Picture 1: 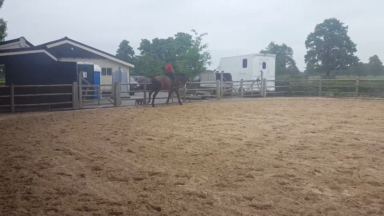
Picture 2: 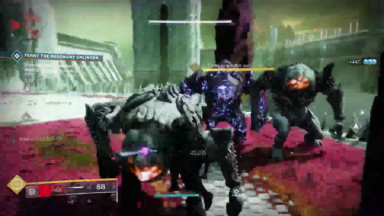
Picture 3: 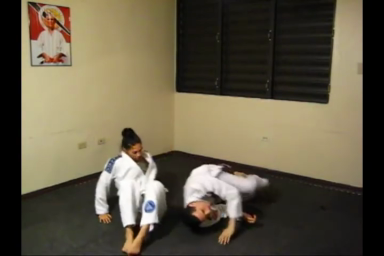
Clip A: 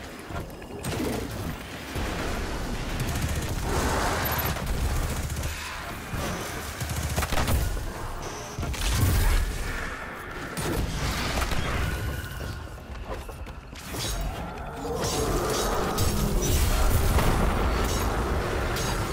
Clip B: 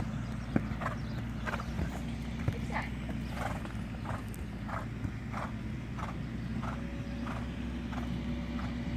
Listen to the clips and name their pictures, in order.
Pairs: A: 2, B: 1